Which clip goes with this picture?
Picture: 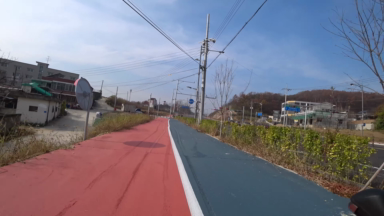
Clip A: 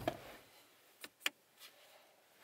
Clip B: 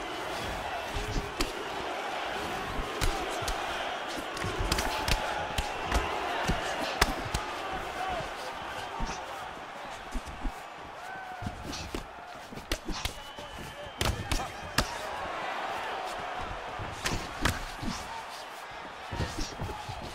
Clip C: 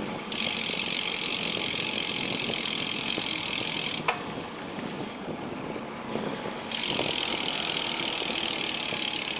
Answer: C